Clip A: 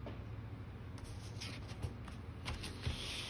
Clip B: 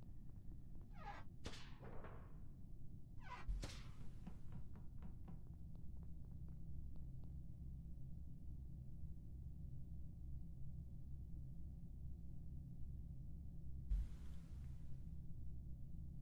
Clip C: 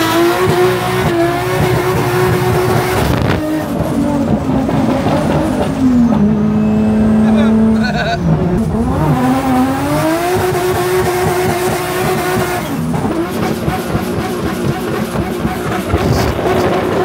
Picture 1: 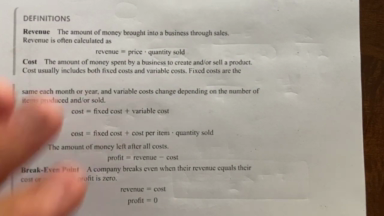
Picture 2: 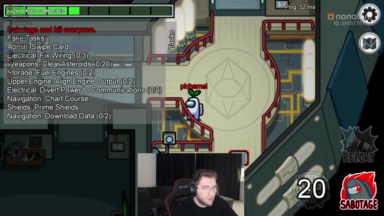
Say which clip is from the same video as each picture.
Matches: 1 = A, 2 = B